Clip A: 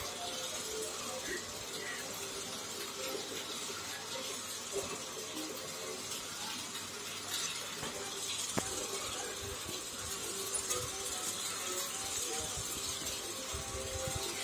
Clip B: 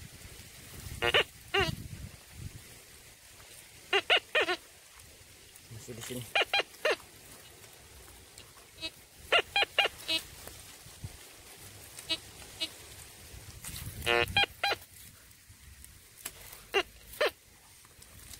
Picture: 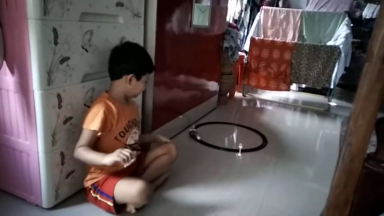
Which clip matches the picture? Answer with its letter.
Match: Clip A